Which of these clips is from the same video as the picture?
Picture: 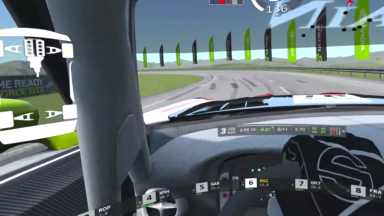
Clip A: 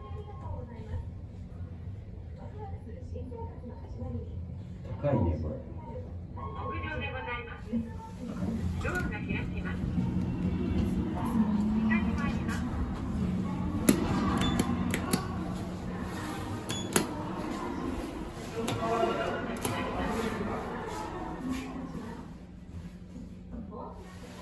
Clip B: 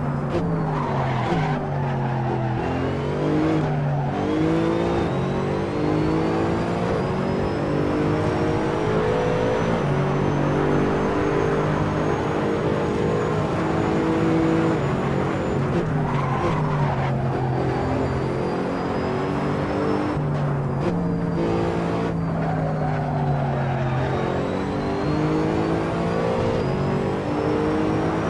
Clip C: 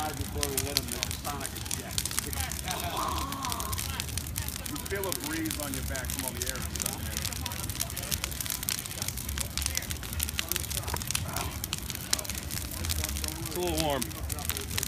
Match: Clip B